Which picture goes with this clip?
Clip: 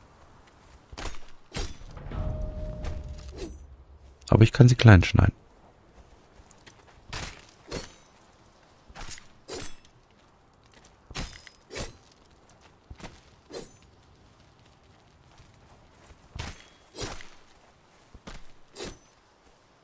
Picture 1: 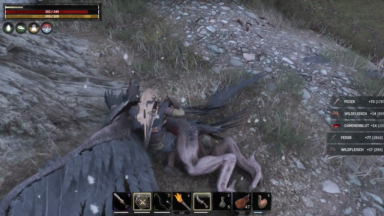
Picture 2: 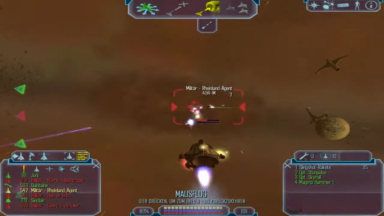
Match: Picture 1